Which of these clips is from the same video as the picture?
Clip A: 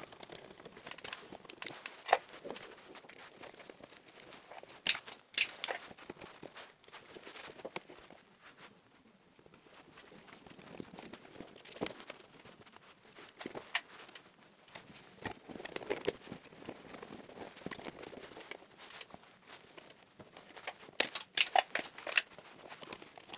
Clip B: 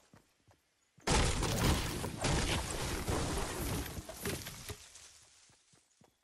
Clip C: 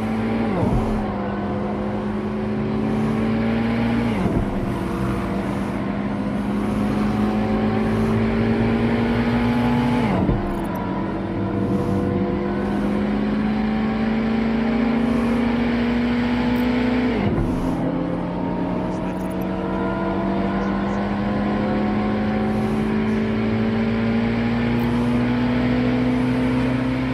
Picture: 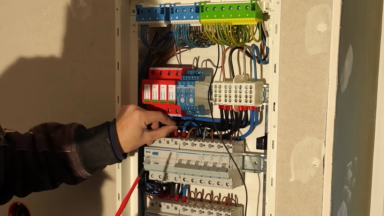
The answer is A